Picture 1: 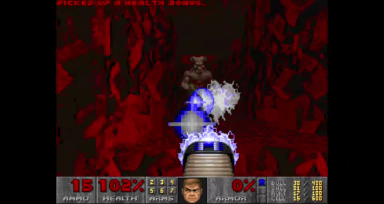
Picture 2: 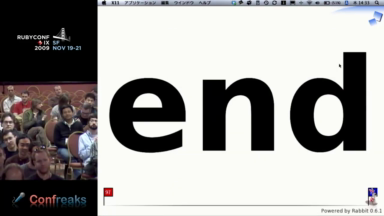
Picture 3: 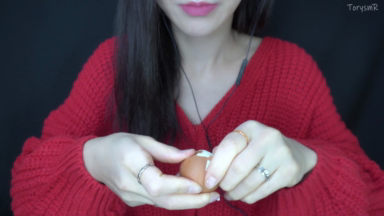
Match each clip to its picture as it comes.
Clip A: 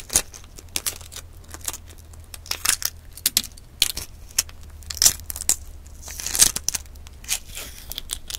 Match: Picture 3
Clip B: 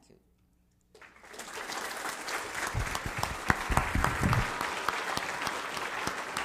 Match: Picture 2